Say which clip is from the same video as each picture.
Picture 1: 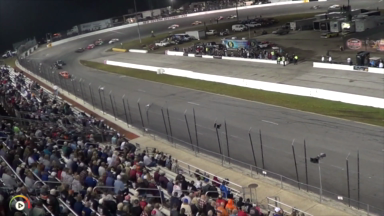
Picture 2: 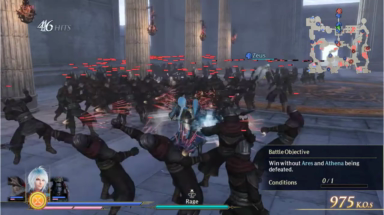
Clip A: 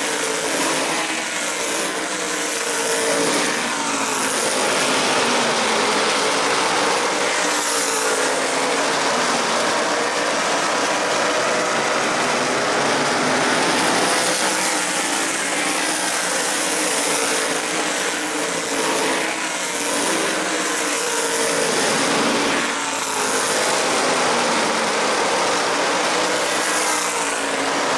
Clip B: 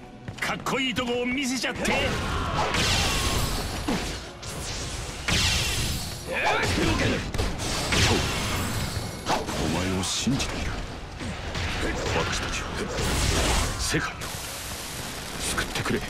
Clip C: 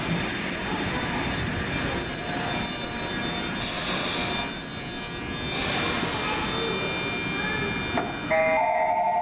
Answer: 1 A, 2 B